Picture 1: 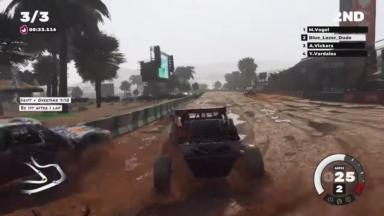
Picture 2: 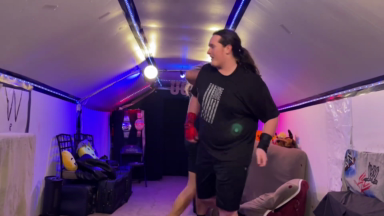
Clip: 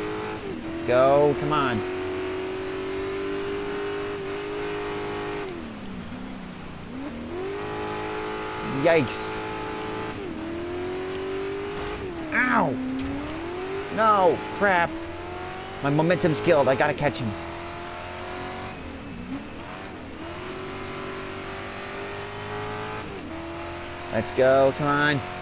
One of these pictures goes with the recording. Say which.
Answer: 1